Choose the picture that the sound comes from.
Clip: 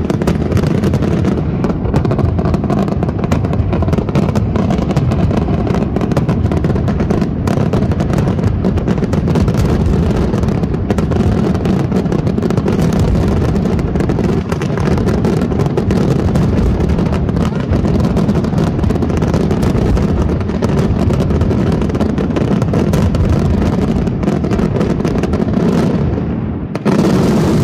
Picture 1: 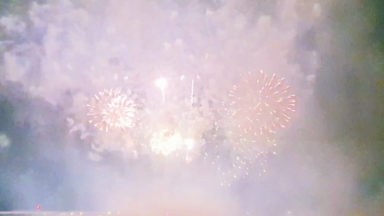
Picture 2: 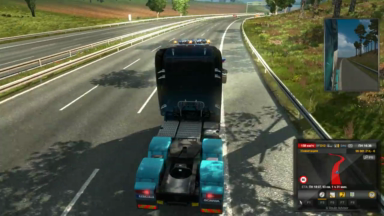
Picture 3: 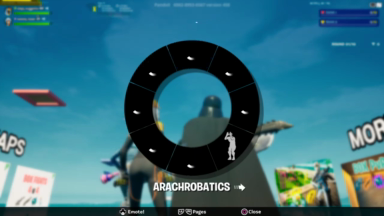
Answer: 1